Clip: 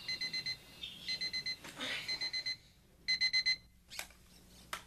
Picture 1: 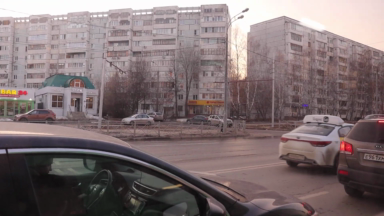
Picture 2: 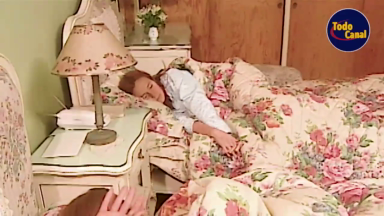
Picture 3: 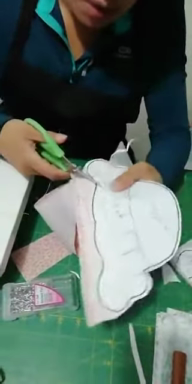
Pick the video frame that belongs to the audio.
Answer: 2